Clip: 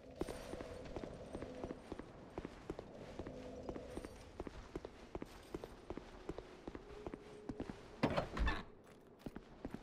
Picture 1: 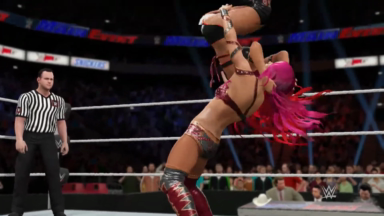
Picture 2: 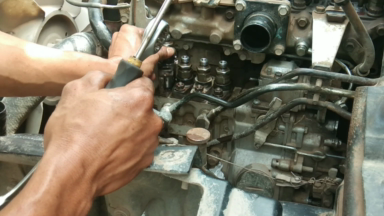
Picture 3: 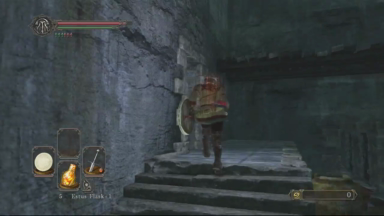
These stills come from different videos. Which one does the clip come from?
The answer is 3